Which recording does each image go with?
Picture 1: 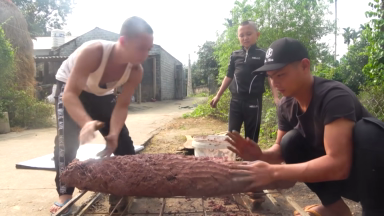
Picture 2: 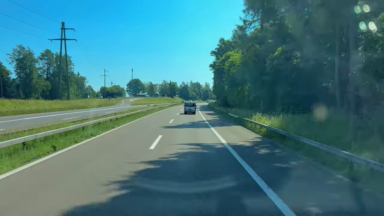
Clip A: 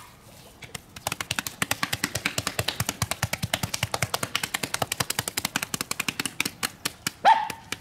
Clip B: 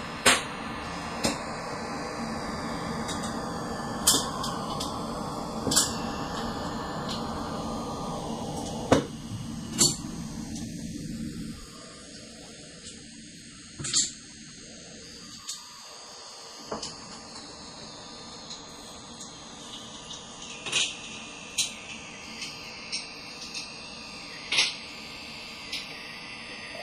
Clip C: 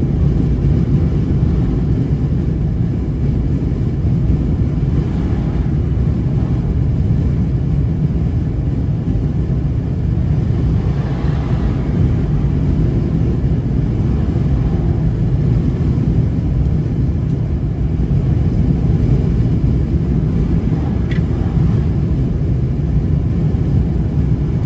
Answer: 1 A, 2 C